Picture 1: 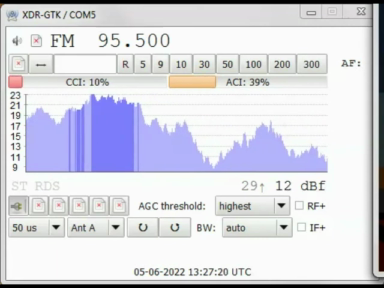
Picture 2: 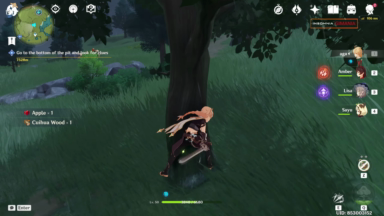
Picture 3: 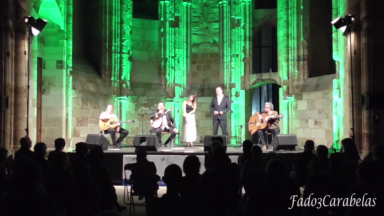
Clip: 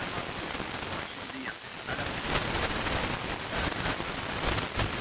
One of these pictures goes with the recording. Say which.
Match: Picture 1